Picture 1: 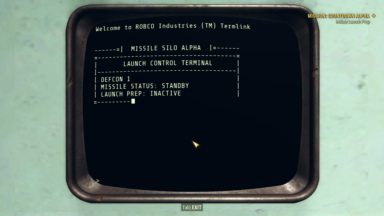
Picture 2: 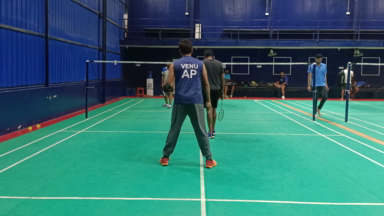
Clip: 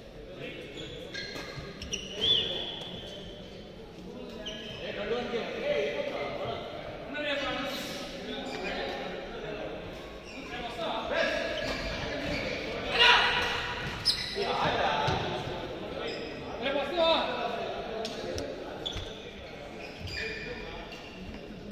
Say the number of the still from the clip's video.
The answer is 2